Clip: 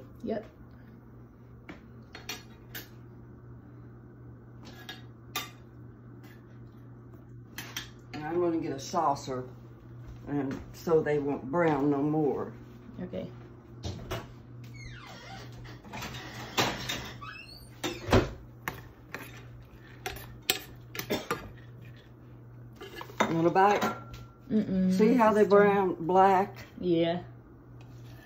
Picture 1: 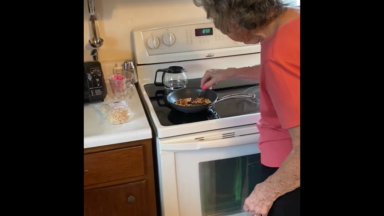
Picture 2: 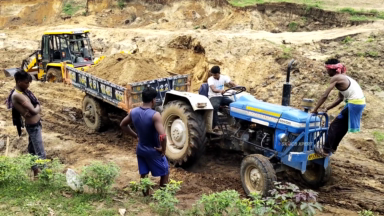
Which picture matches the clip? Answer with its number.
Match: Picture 1